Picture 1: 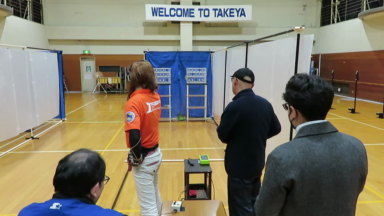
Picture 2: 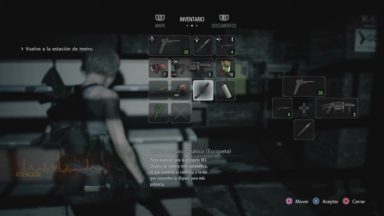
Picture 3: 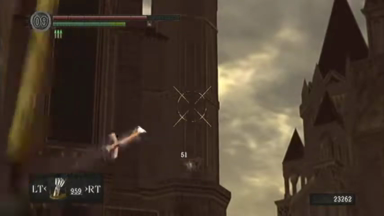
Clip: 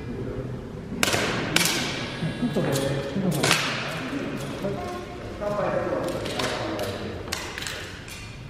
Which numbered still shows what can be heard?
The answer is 1